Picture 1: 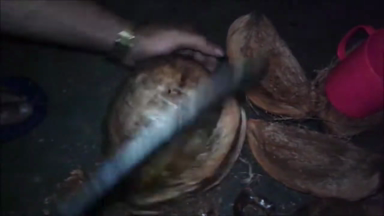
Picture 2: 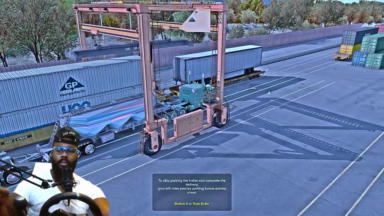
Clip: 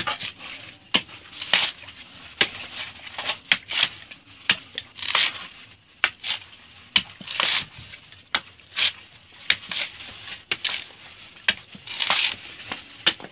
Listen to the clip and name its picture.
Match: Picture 1